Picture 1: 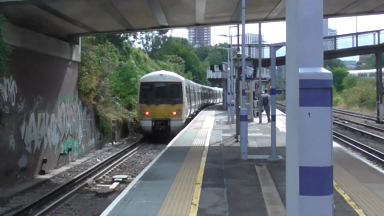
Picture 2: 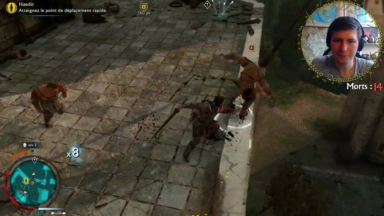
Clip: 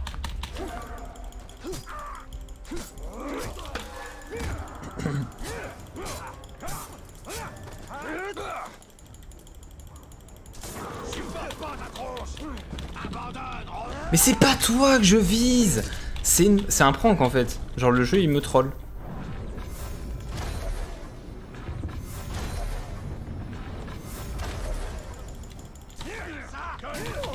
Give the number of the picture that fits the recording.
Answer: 2